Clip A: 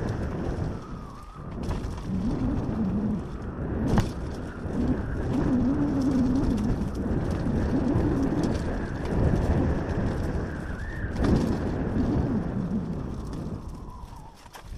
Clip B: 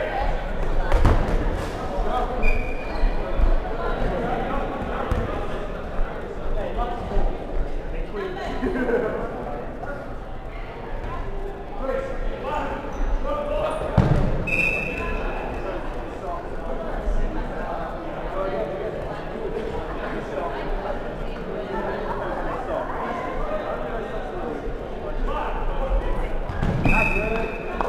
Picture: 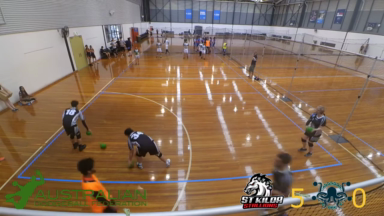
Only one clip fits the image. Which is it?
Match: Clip B